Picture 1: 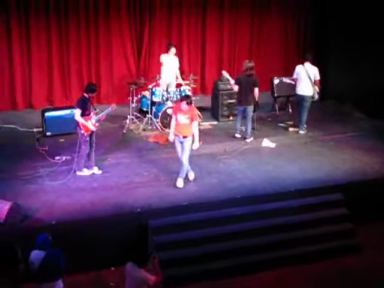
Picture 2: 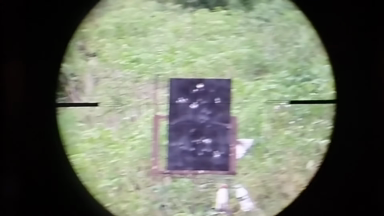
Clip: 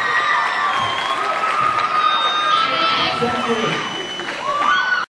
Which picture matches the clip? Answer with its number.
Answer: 1